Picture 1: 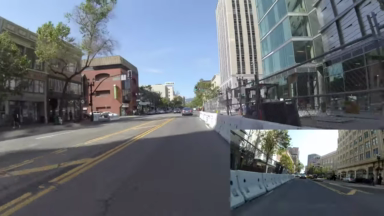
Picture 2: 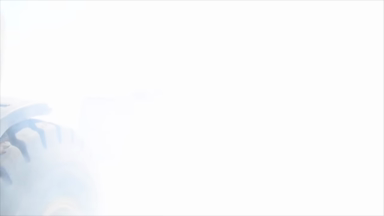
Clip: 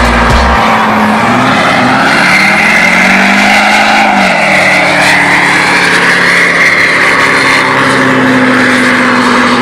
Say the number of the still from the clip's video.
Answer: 2